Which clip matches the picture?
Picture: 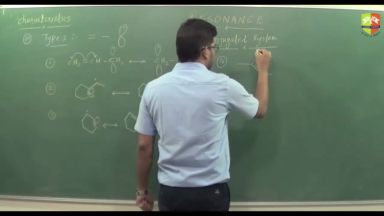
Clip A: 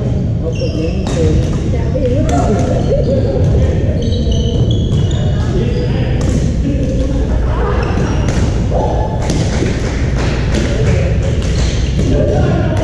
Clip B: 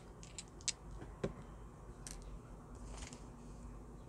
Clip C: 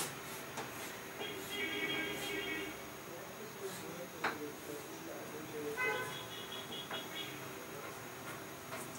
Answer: C